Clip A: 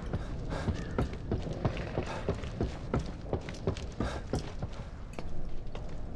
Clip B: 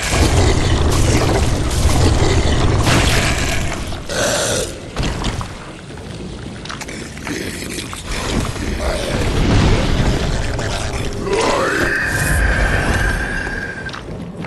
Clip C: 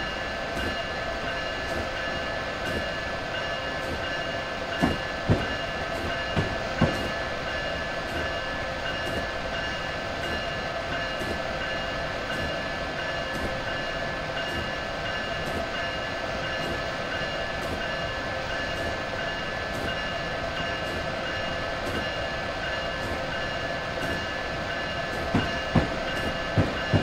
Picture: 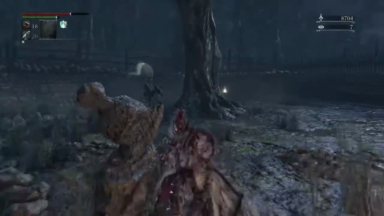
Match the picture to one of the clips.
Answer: B